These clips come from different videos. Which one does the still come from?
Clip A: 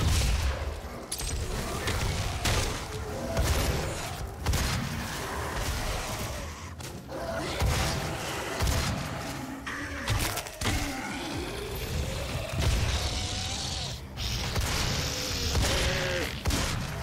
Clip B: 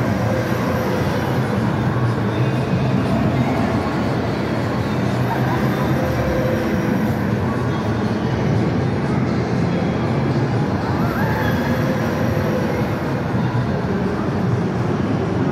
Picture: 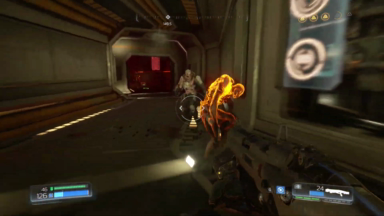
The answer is A